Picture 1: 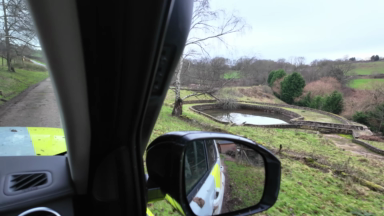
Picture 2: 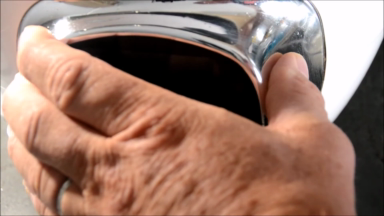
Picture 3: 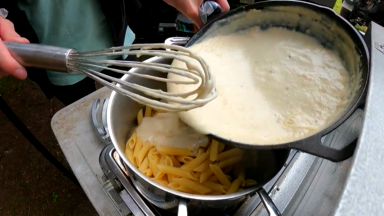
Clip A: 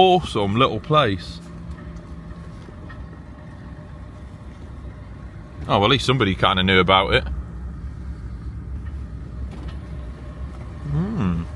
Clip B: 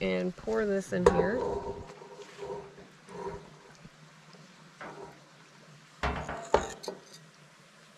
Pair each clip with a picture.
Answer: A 1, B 3